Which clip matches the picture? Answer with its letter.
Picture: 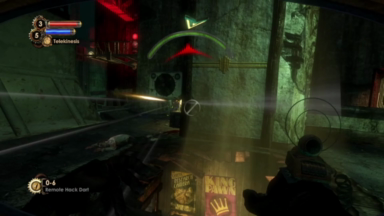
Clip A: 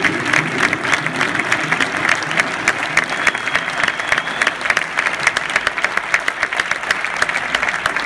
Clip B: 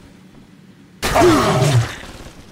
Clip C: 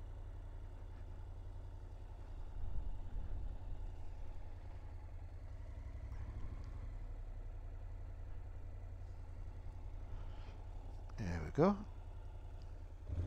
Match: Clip B